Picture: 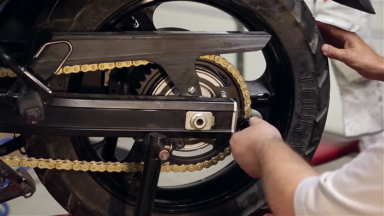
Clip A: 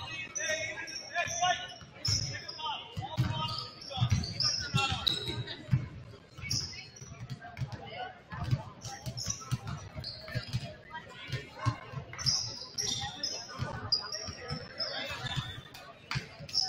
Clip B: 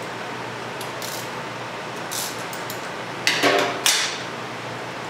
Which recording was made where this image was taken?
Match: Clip B